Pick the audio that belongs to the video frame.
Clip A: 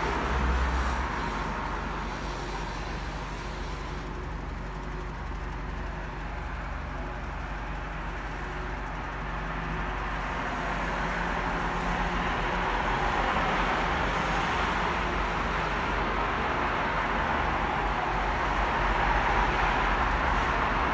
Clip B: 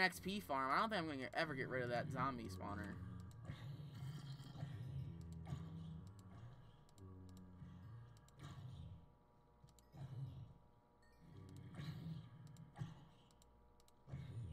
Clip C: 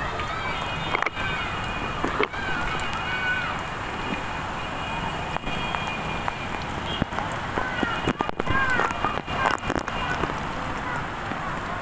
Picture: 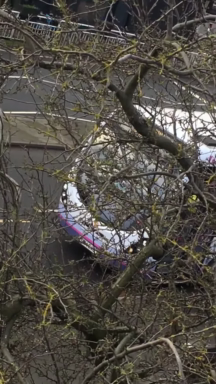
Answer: A